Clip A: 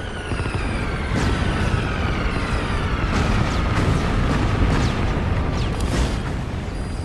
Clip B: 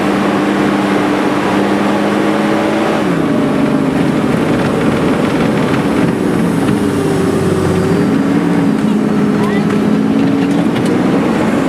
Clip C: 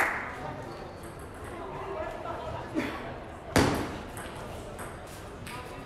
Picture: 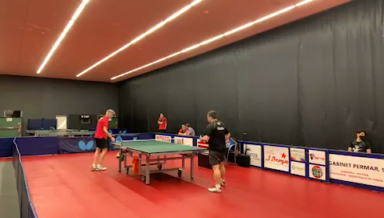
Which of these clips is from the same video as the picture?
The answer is C